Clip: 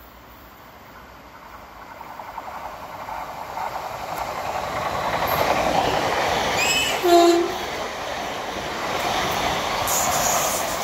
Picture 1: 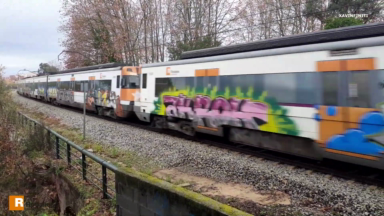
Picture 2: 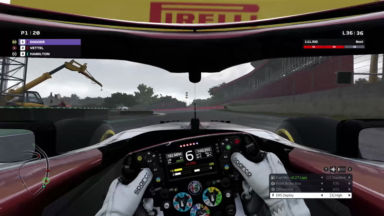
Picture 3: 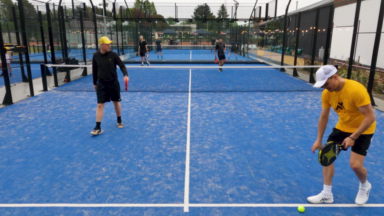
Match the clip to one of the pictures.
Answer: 1